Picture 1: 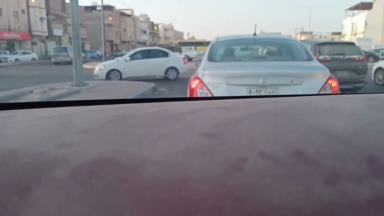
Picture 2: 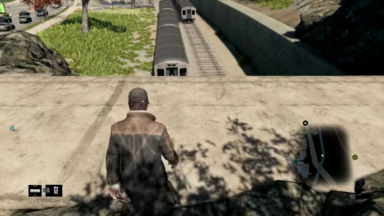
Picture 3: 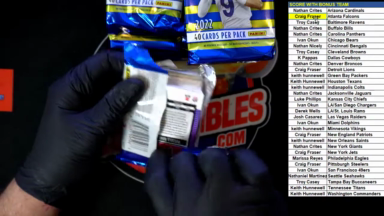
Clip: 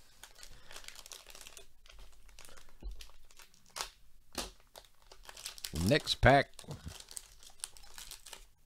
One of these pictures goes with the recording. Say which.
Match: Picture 3